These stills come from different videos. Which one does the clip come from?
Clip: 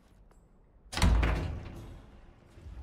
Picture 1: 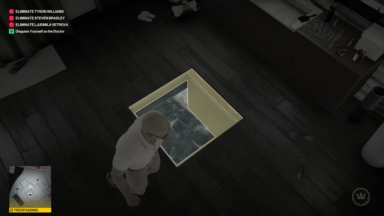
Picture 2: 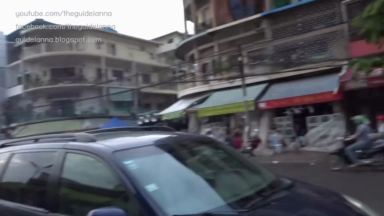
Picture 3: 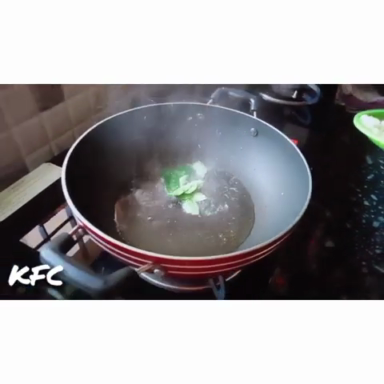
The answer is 1